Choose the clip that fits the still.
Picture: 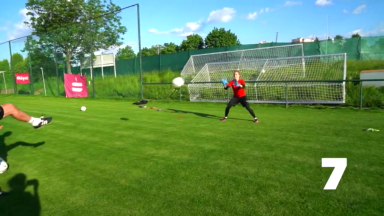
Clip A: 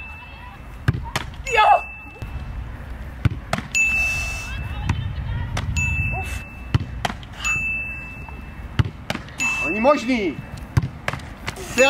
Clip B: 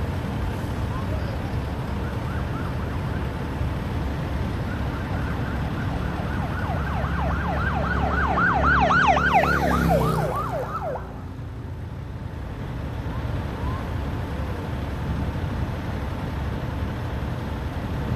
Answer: A